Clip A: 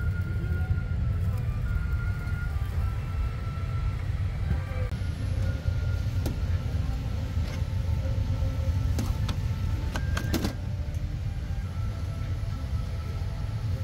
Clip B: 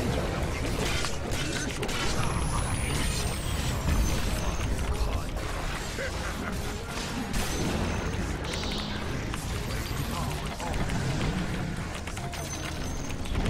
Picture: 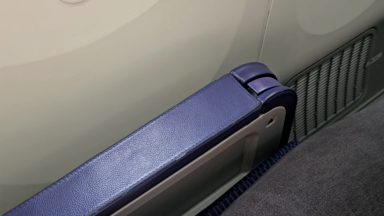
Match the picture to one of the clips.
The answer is A